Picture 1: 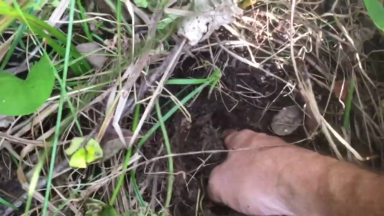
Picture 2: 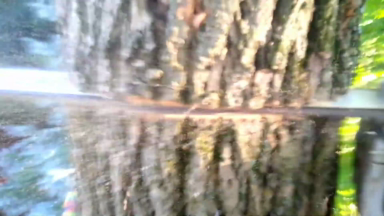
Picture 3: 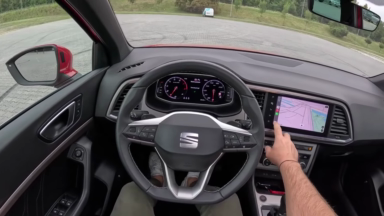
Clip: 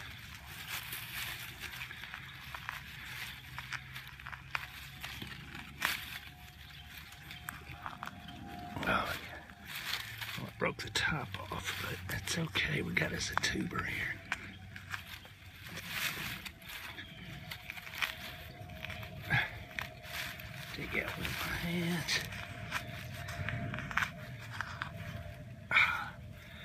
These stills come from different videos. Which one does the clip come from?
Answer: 1